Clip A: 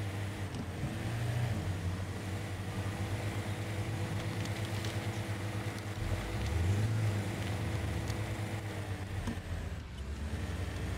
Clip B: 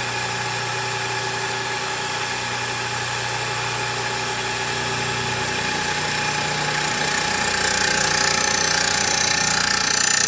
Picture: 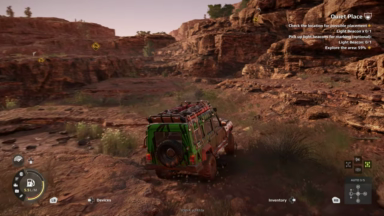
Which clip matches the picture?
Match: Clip A